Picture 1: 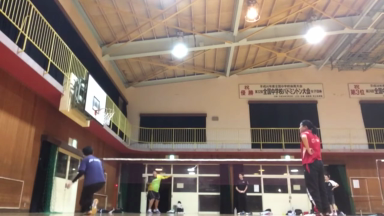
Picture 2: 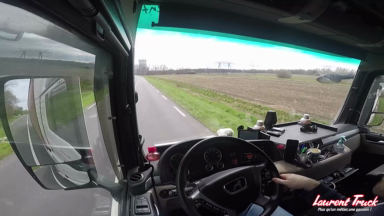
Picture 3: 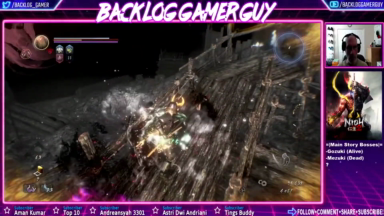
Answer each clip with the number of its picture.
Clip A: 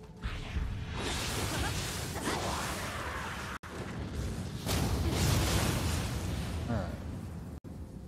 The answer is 3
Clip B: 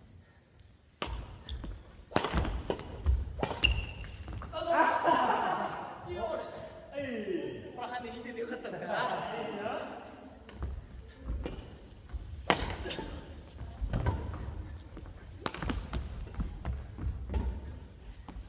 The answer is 1